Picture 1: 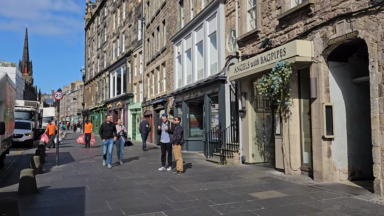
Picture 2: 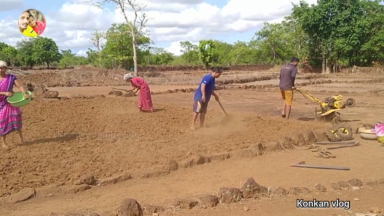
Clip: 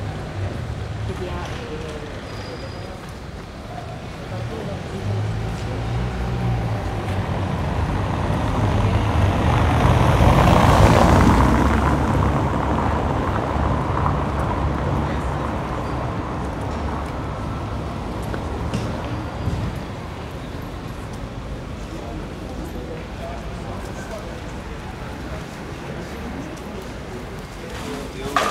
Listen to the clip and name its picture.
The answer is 1